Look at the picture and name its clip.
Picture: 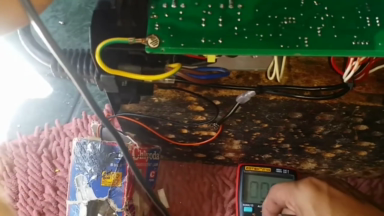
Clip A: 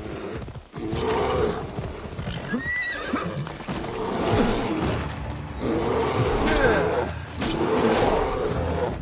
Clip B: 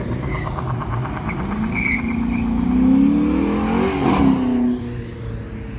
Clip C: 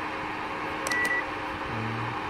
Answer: C